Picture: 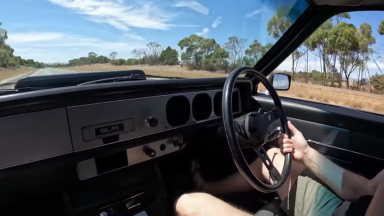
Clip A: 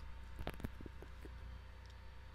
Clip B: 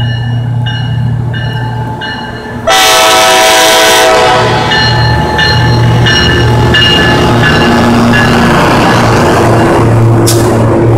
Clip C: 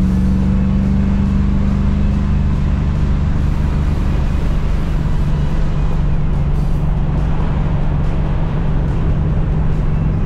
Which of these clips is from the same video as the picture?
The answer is C